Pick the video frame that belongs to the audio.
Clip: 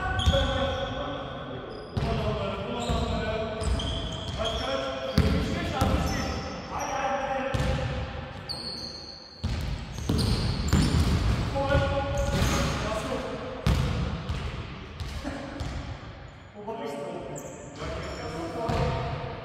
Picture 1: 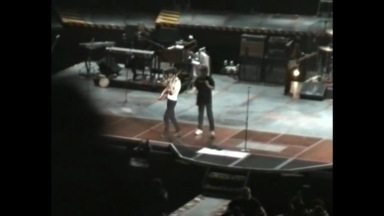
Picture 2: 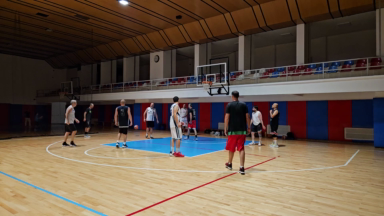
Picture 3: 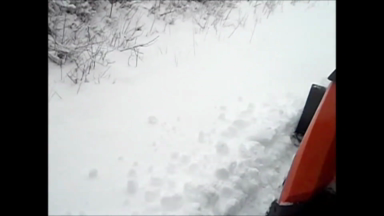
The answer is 2